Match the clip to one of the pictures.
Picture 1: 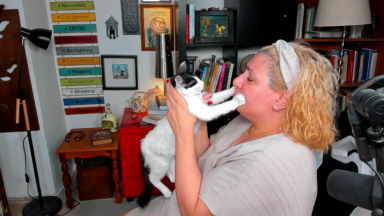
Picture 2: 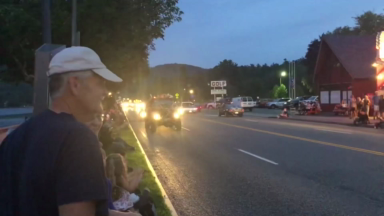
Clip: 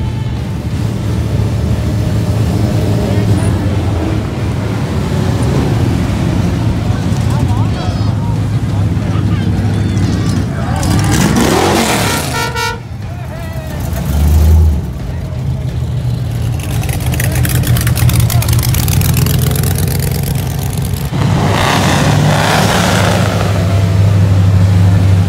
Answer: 2